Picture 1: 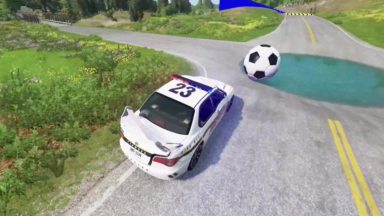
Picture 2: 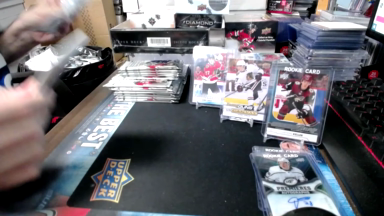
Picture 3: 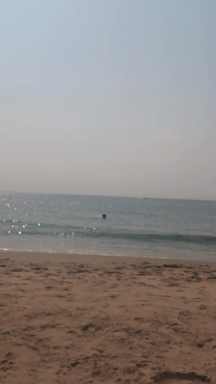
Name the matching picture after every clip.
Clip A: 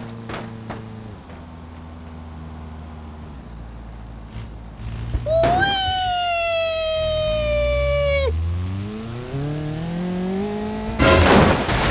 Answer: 1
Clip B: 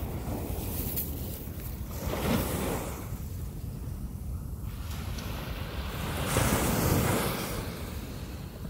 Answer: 3